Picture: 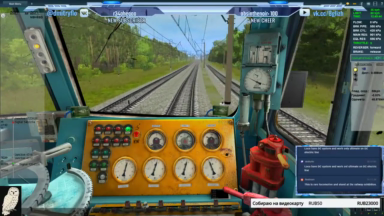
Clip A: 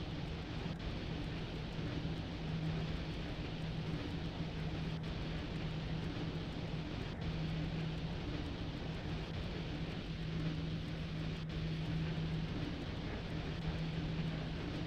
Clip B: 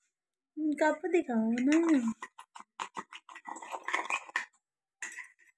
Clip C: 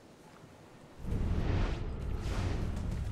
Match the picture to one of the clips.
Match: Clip A